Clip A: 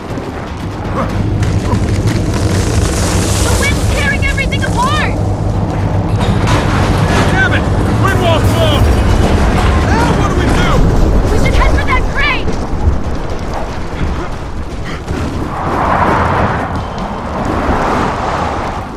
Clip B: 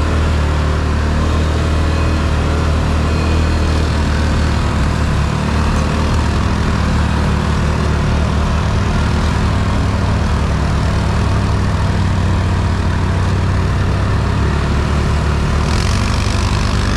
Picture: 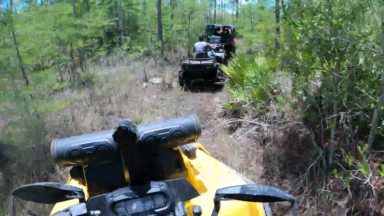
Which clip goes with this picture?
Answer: B